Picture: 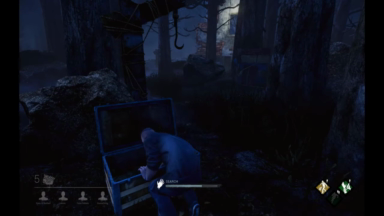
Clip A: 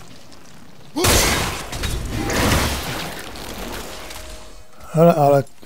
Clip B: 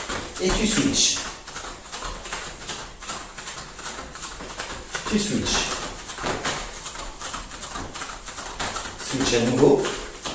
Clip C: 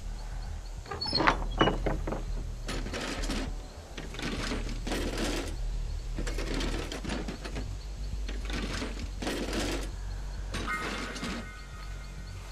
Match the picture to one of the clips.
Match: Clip C